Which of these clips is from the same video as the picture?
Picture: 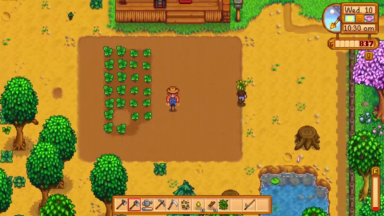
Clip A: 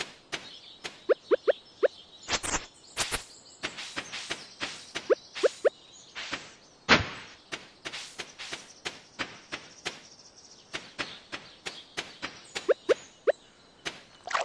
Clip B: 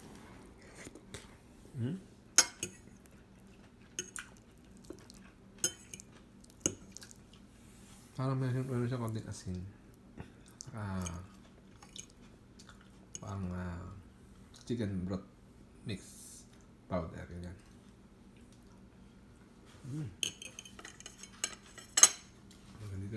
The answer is A